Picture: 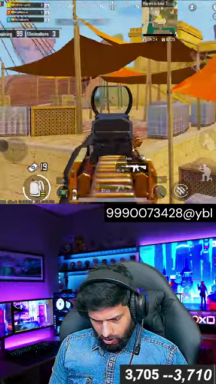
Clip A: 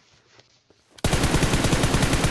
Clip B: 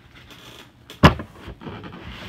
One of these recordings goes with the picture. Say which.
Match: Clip A